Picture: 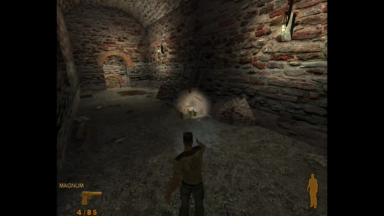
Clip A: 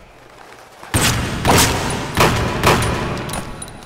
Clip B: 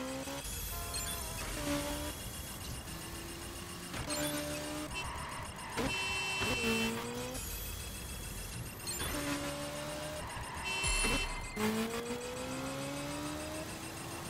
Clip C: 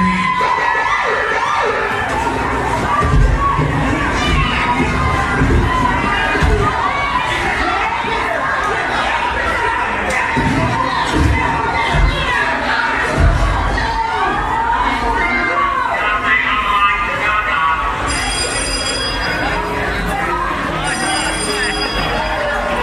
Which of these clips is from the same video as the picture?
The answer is A